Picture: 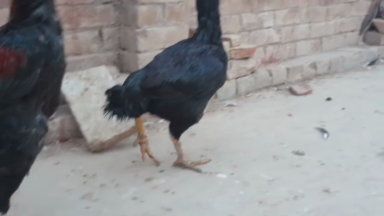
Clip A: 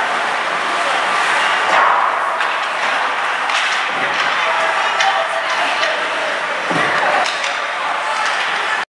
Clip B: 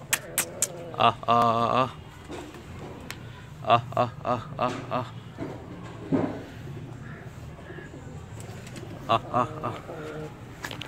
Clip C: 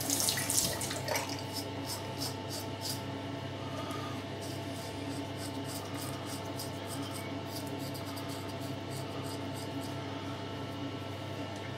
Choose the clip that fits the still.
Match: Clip B